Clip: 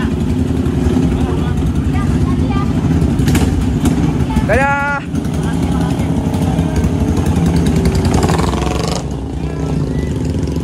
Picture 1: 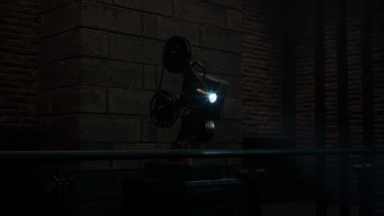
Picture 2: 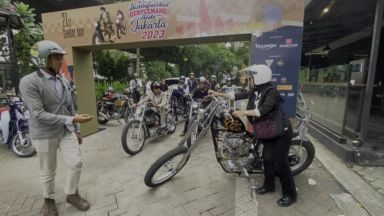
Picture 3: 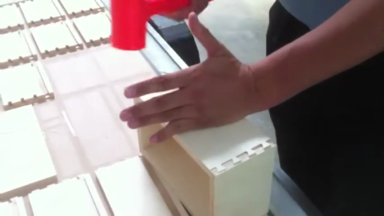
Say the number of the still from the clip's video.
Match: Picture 2